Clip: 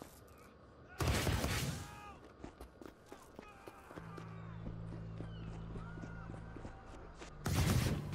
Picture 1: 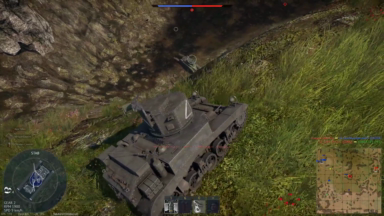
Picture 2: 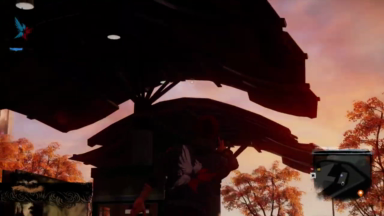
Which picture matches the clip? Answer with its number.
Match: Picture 2